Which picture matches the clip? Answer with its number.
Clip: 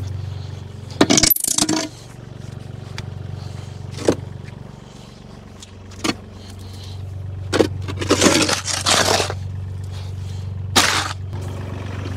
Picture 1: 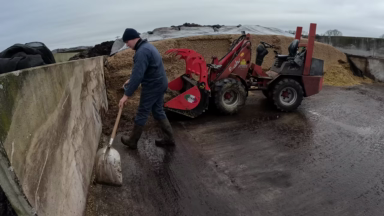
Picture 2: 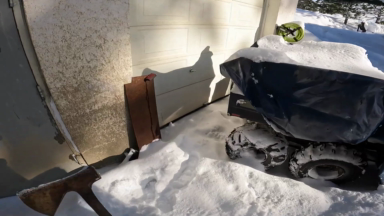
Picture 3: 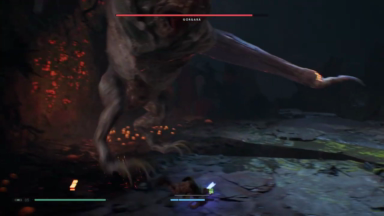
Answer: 1